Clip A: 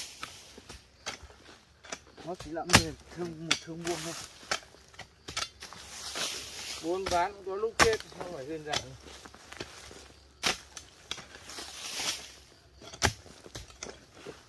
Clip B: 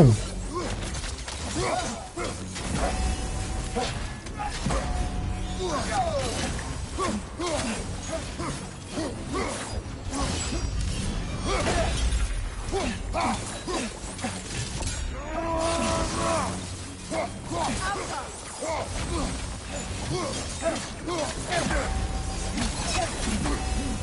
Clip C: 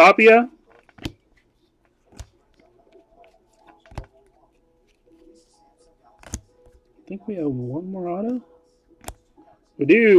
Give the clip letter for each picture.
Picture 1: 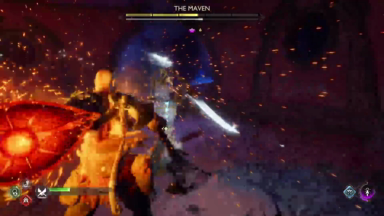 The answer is B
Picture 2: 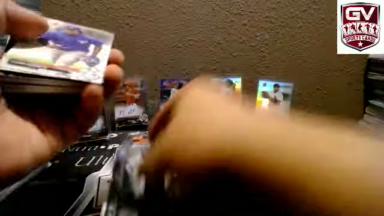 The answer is C